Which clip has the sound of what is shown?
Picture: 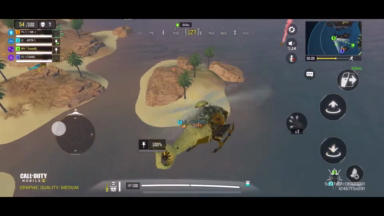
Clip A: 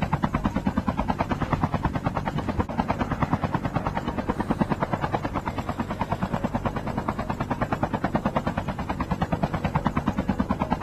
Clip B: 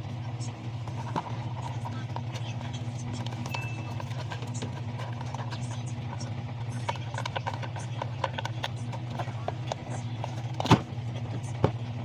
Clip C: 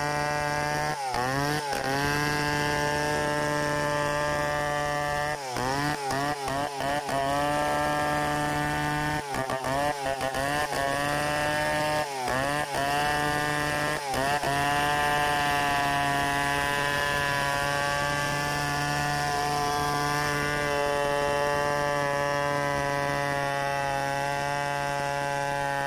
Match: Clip A